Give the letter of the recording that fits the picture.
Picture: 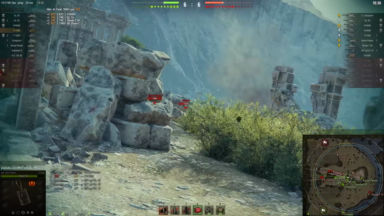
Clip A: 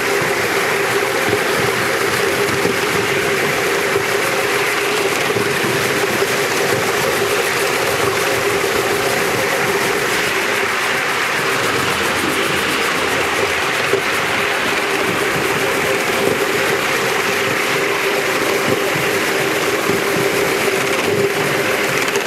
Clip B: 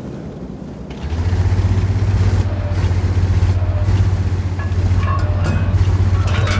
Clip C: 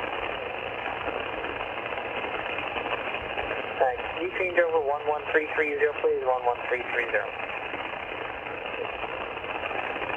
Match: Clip B